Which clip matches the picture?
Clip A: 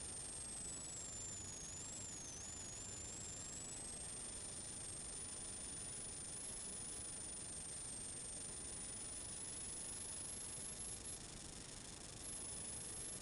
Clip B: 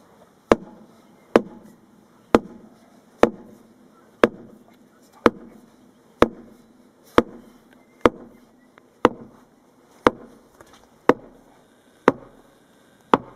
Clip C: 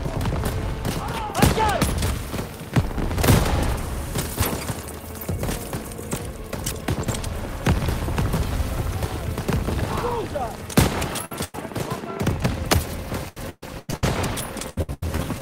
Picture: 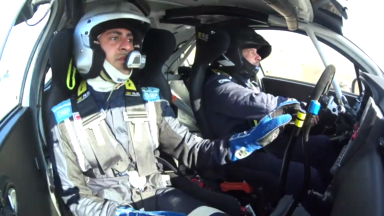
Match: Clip A